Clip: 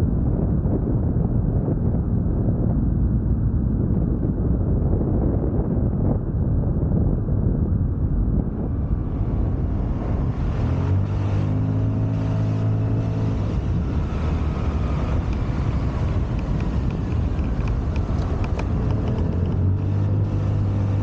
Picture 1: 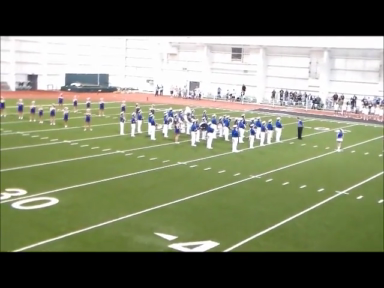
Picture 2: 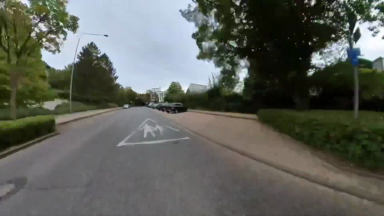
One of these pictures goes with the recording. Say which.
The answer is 2